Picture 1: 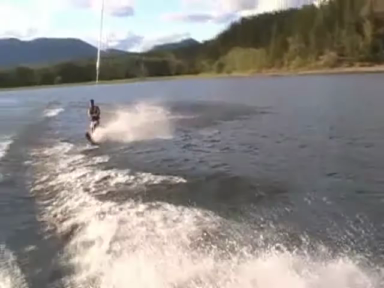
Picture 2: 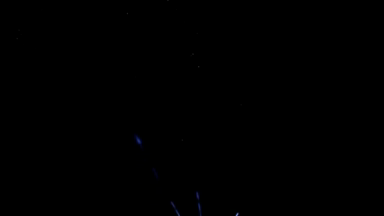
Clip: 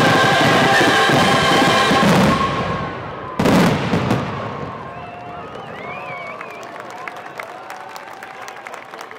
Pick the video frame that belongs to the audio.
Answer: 2